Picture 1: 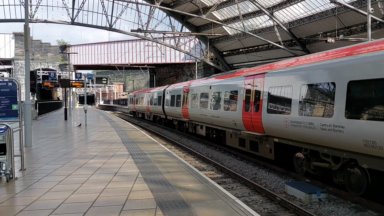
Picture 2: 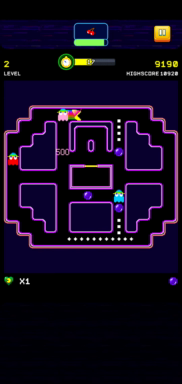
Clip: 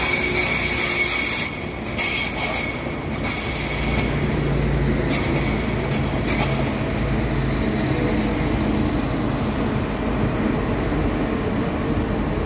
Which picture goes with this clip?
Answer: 1